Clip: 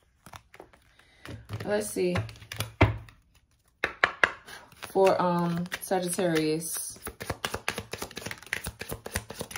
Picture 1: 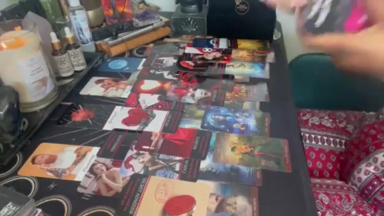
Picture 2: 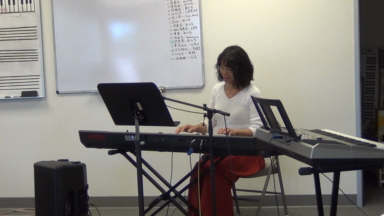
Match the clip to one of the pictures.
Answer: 1